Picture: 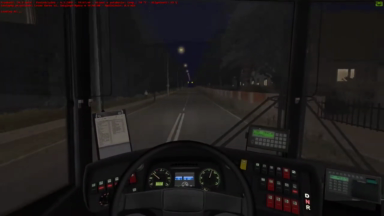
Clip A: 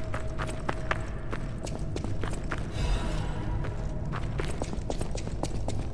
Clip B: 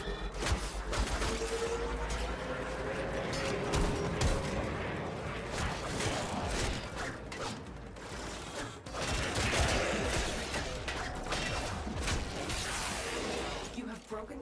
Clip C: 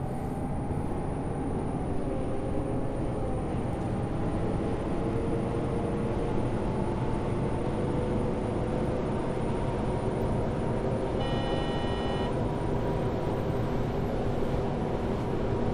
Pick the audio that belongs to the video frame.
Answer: C